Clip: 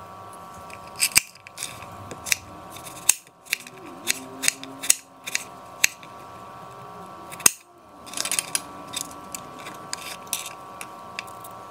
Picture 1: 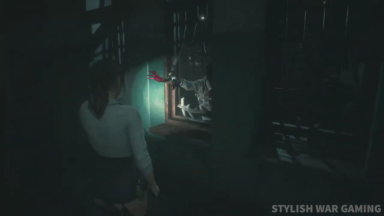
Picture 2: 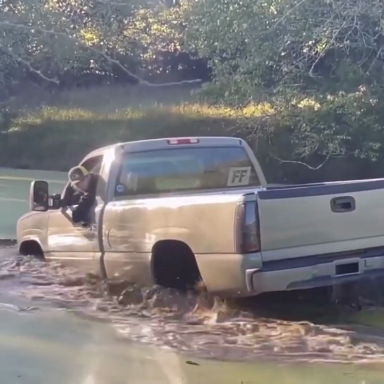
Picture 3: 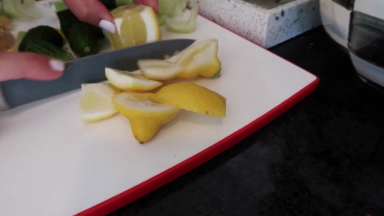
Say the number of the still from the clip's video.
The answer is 3